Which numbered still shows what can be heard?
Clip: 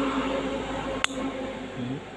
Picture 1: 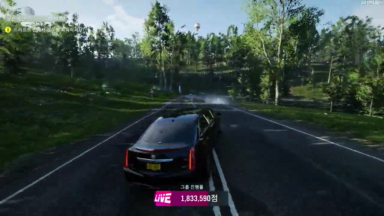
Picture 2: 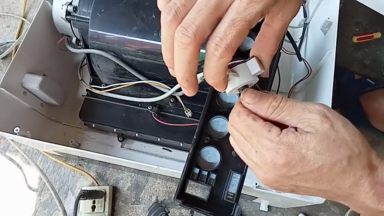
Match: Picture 2